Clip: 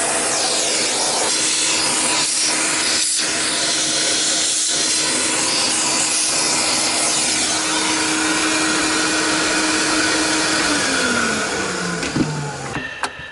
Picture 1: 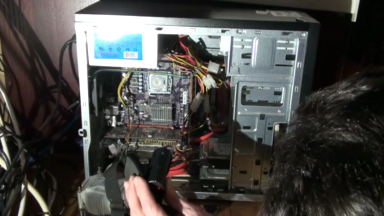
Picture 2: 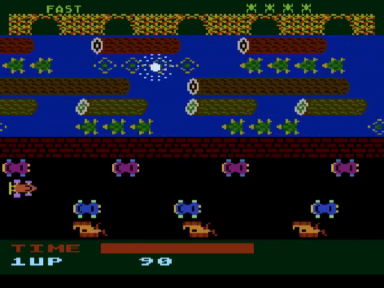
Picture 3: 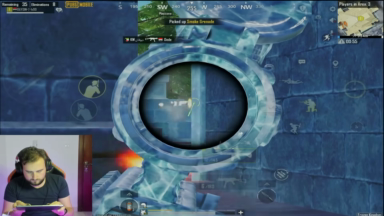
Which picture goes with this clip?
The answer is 1